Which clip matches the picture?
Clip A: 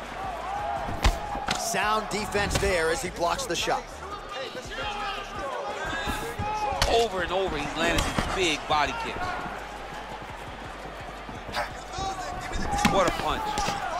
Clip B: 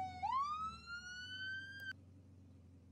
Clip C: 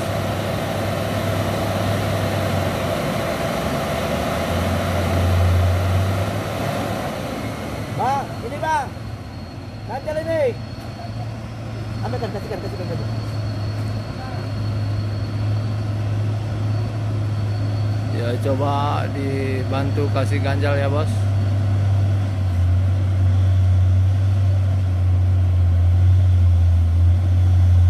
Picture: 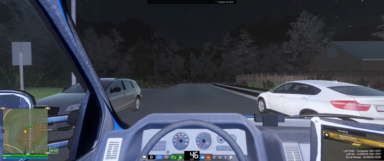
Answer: B